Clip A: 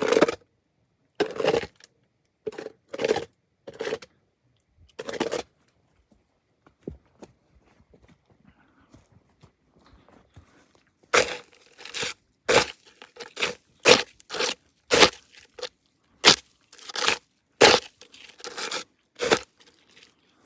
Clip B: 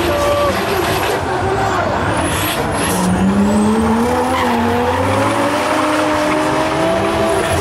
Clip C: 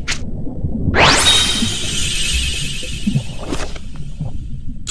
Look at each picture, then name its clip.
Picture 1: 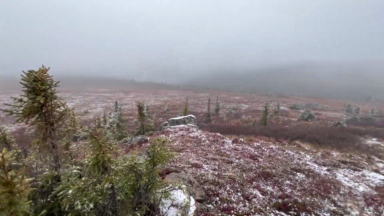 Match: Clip A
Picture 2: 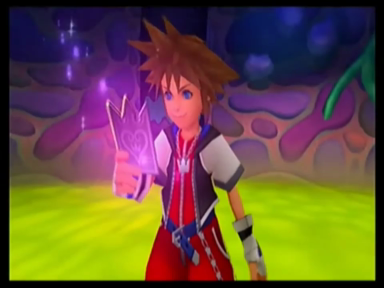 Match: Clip C